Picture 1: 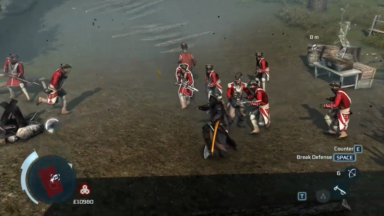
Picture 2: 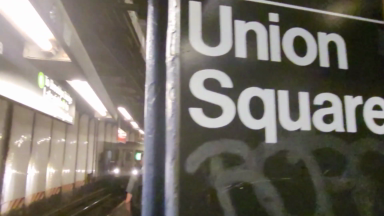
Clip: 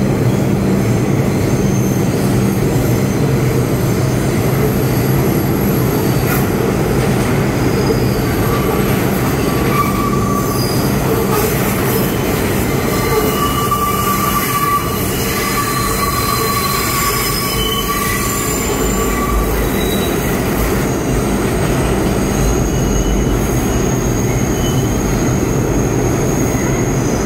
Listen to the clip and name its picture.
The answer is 2